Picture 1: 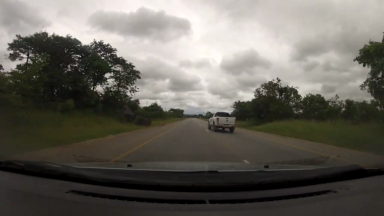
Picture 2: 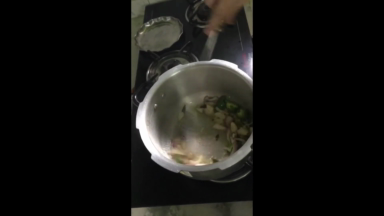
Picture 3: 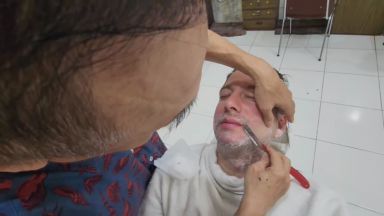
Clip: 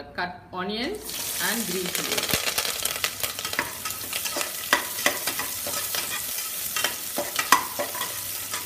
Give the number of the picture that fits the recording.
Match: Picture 2